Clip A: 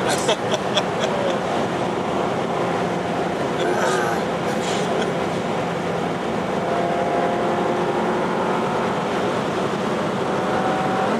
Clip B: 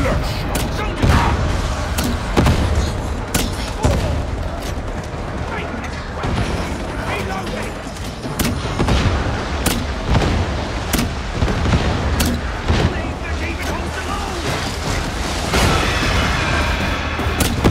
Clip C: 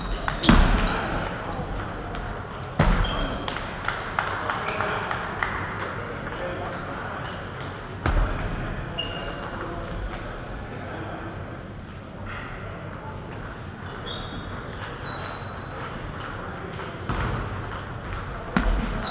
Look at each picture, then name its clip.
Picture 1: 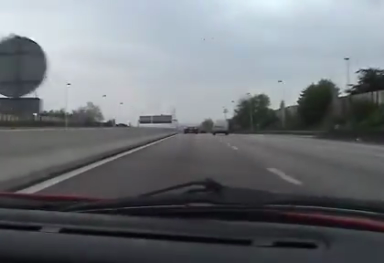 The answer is A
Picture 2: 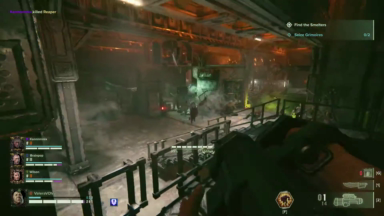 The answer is B